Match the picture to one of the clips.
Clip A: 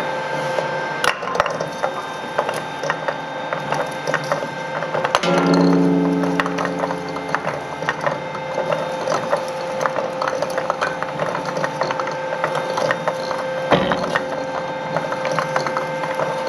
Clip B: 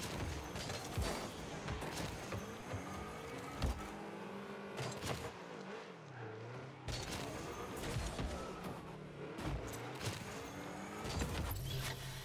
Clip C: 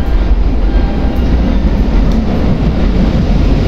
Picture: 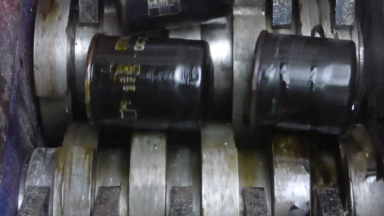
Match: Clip A